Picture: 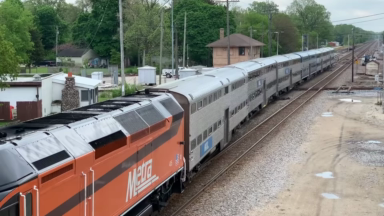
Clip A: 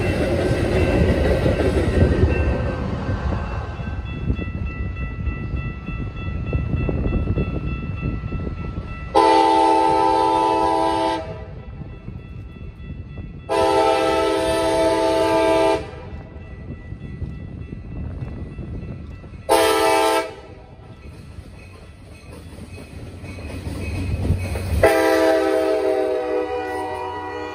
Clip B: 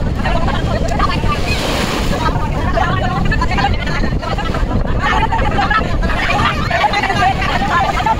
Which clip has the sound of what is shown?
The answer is A